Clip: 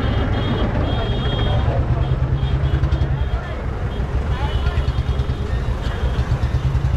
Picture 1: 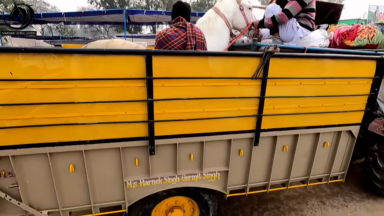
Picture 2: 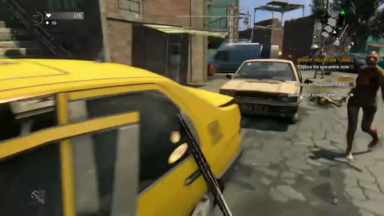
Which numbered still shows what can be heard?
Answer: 1